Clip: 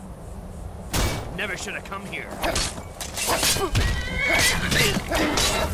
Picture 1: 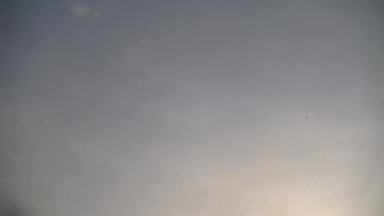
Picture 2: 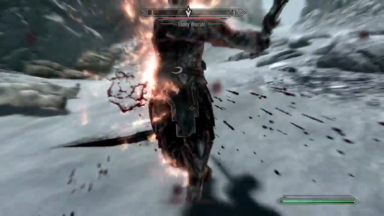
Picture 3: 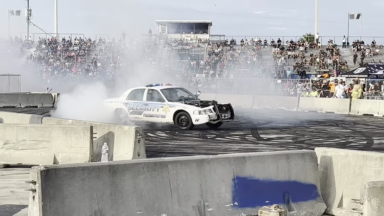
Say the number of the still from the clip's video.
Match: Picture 2